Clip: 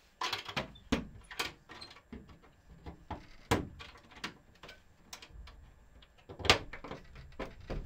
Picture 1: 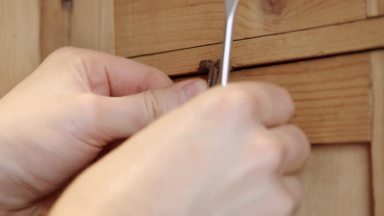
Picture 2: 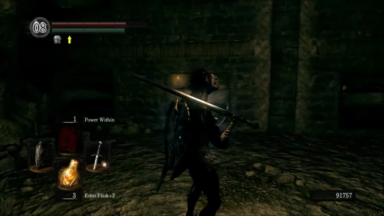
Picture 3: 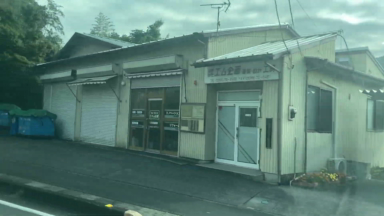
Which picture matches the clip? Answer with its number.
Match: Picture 1